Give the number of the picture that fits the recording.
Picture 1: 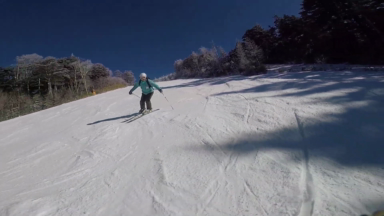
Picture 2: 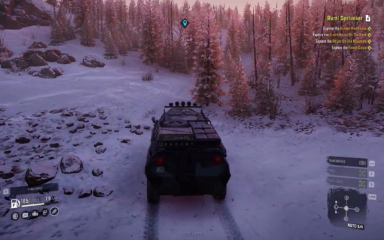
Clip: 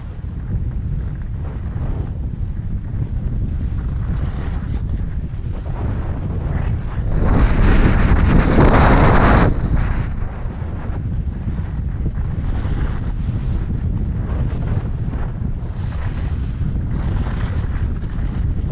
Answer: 1